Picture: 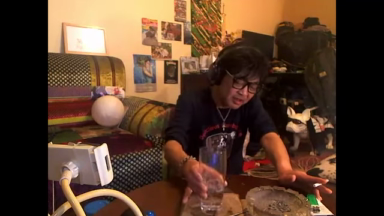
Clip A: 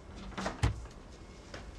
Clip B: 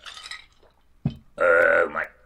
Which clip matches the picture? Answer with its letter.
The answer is B